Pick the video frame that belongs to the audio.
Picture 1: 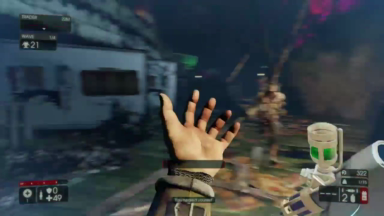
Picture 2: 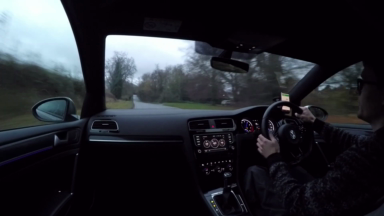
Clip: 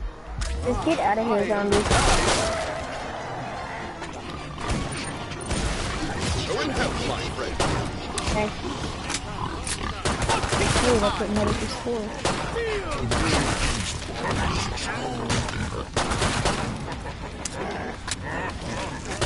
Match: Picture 1